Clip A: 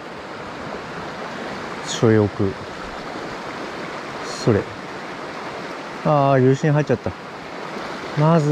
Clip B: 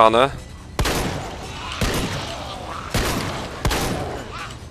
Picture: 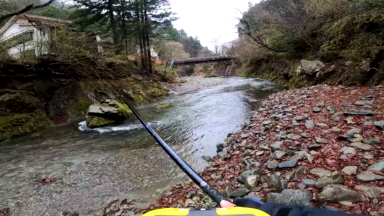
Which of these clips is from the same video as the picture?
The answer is A